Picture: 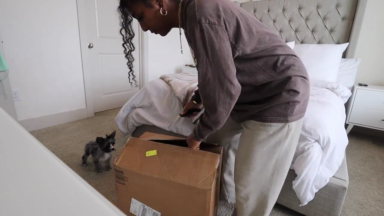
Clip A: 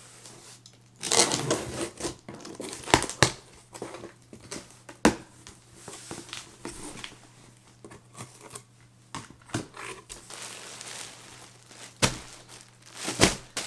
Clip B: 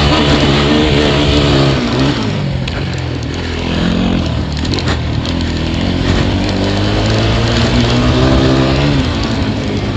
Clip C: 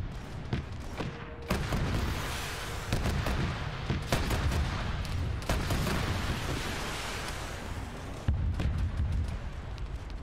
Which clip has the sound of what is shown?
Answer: A